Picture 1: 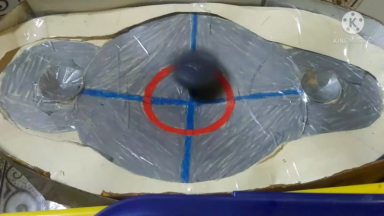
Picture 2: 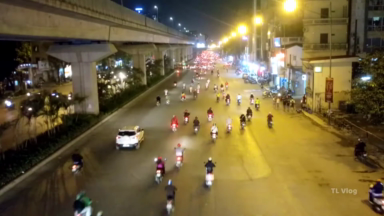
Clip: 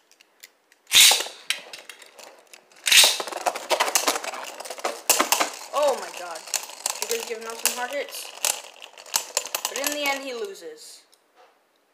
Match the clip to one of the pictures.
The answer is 1